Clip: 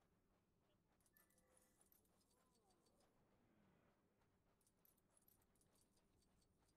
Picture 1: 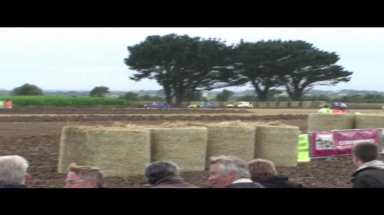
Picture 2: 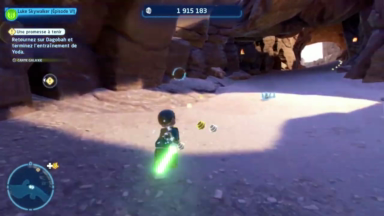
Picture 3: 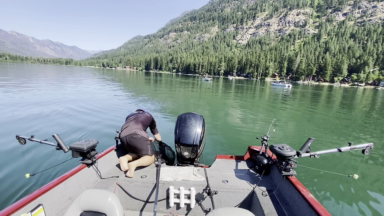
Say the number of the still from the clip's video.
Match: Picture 2